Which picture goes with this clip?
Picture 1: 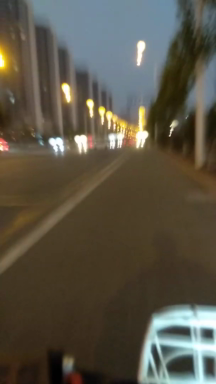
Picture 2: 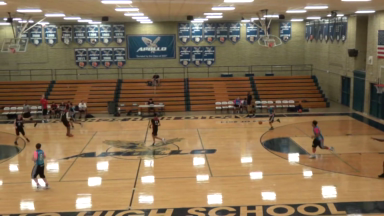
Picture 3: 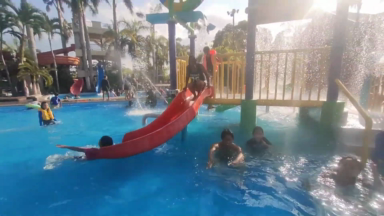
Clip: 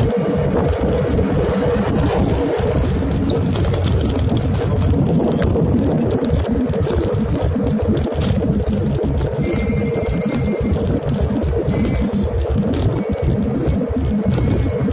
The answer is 1